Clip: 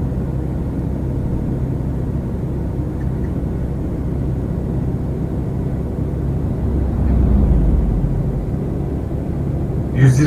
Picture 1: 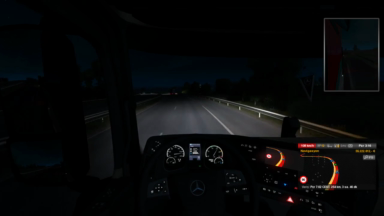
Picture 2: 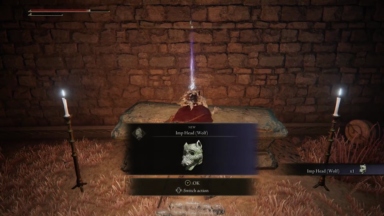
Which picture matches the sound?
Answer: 1